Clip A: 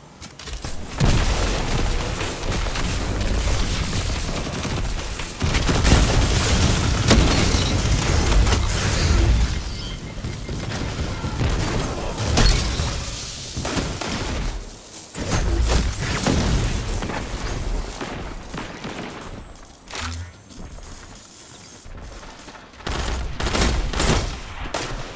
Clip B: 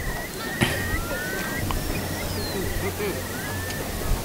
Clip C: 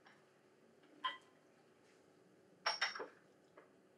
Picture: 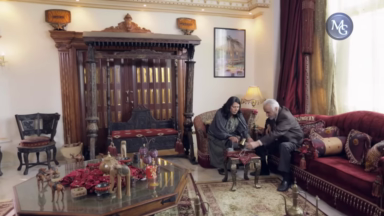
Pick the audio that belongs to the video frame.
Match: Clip C